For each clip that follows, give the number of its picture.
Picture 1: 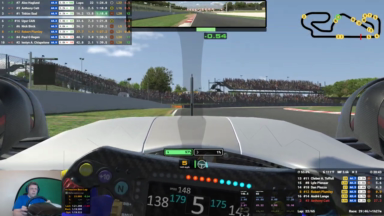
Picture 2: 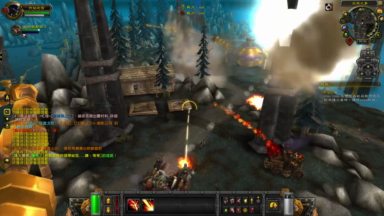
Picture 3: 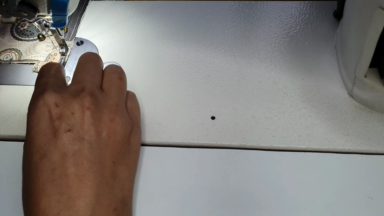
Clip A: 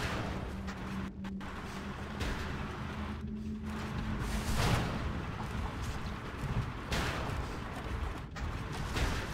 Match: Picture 2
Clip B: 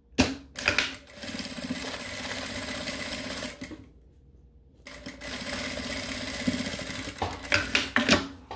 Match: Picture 3